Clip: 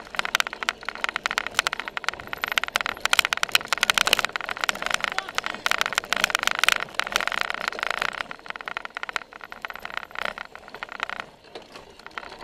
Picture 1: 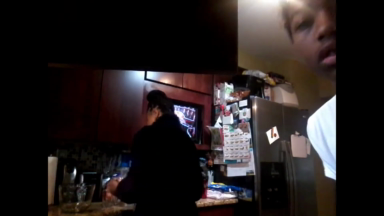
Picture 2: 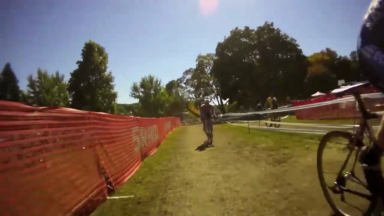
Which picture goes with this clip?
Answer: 2